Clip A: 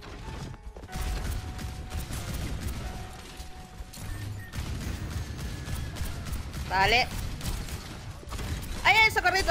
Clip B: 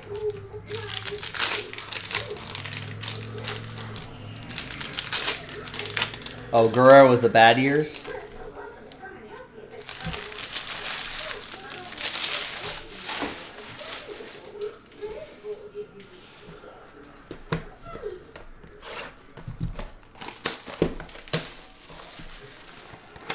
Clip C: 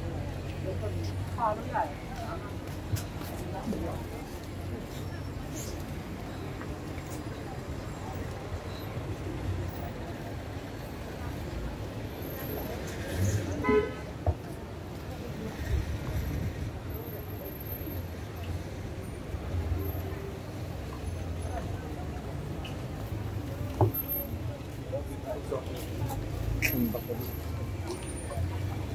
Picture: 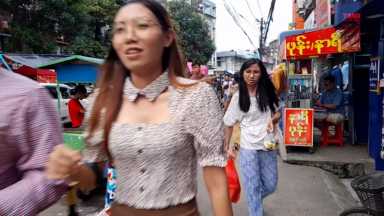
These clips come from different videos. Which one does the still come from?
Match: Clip C